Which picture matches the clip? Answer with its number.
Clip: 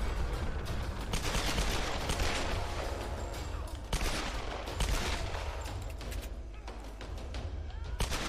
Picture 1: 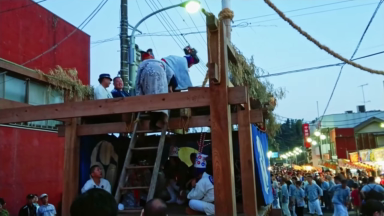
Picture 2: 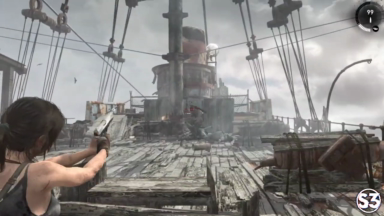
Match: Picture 2